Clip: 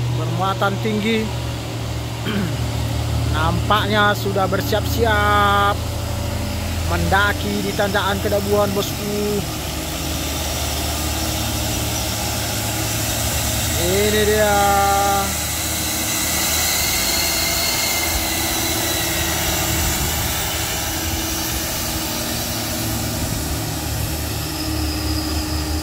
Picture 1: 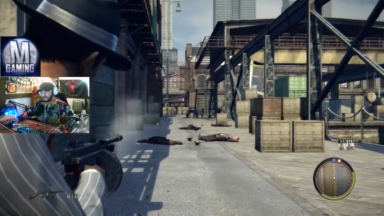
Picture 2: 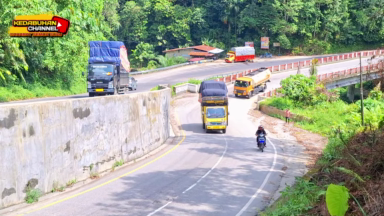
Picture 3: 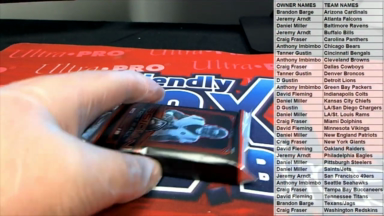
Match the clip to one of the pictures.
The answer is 2